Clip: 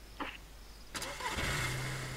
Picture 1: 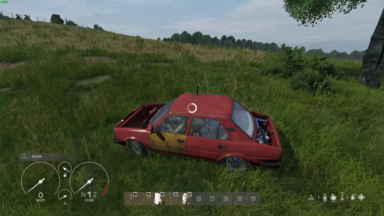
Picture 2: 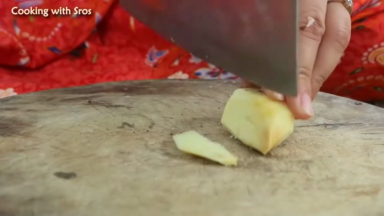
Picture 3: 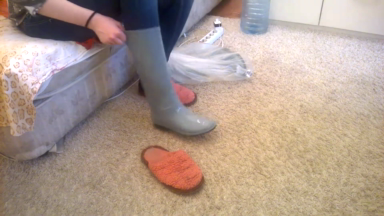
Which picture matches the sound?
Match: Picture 1